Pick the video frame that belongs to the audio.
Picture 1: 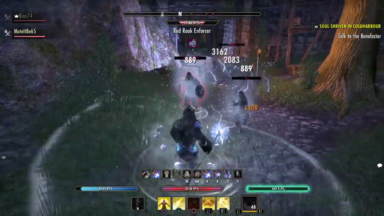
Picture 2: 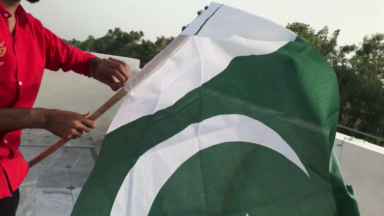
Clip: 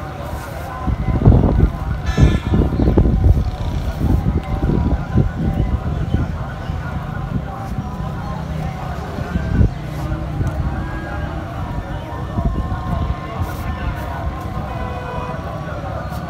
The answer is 2